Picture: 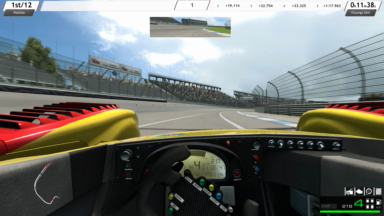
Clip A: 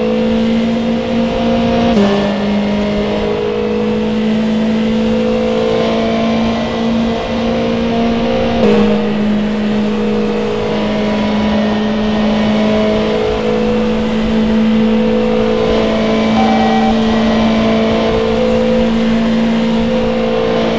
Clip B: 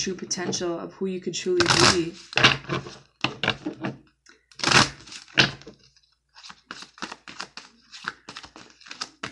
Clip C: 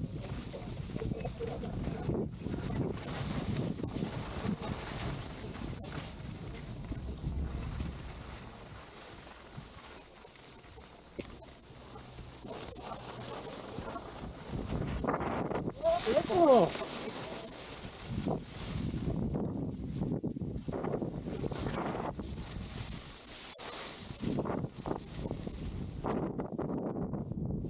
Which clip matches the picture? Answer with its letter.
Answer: A